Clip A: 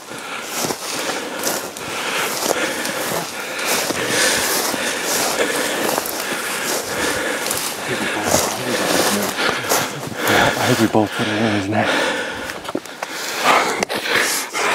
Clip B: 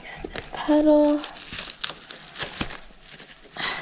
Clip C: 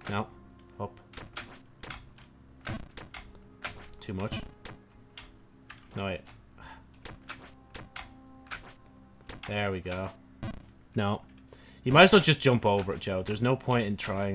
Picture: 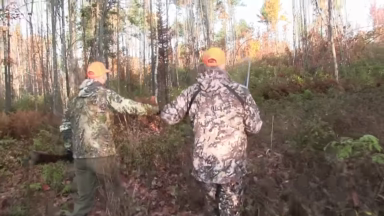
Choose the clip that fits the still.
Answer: A